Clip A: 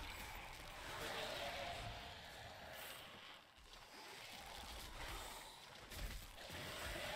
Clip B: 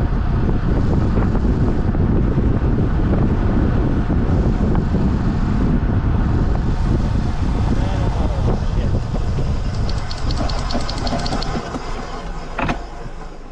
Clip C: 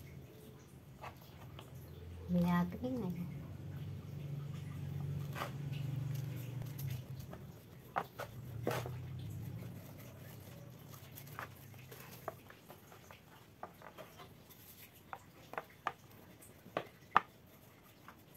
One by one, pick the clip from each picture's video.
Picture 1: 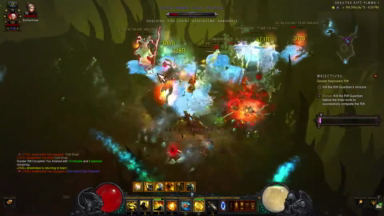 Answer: A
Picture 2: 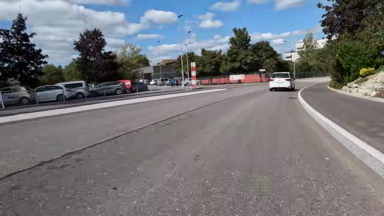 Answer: B